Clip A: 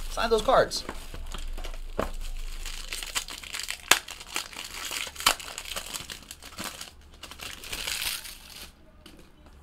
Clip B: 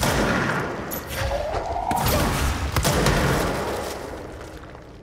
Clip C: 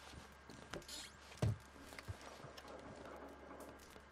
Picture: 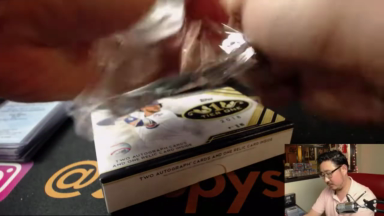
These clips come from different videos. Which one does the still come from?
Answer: A